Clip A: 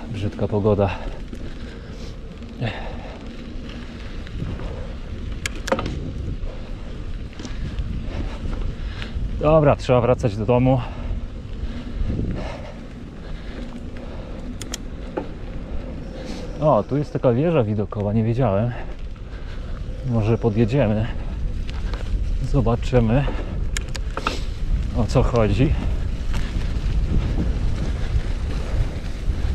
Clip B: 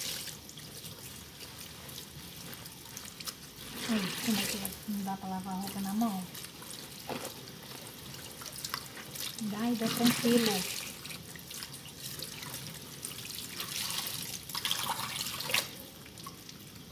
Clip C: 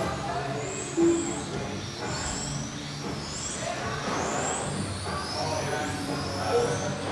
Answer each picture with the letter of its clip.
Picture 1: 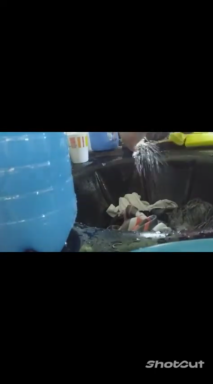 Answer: B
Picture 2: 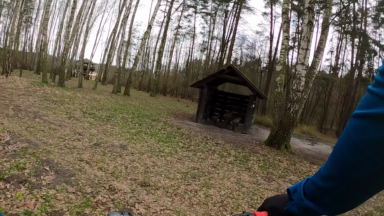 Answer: A